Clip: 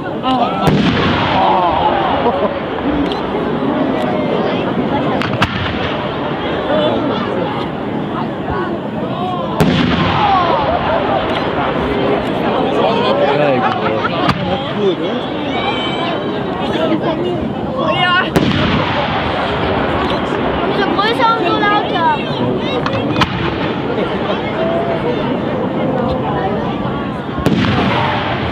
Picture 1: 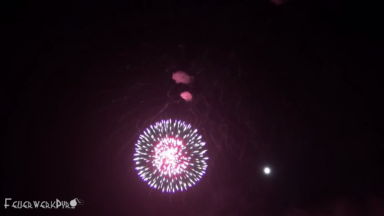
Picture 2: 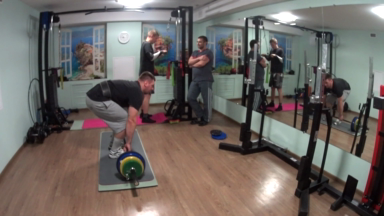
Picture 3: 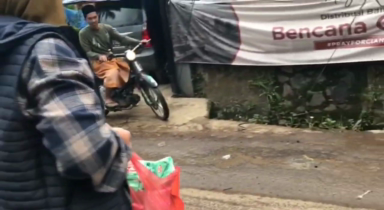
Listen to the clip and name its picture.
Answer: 1